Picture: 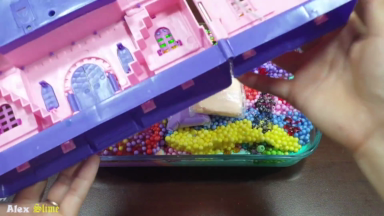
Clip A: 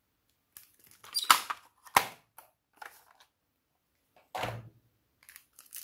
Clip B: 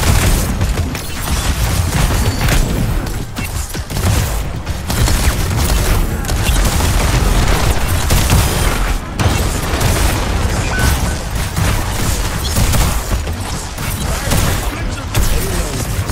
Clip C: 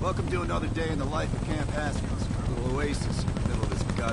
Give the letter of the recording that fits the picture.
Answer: A